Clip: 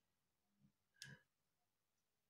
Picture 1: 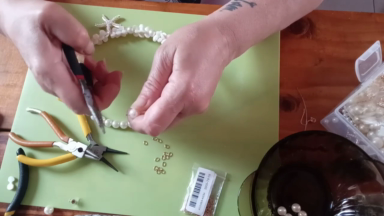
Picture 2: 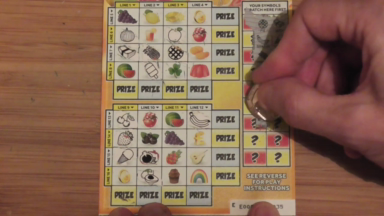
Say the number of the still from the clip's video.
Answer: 1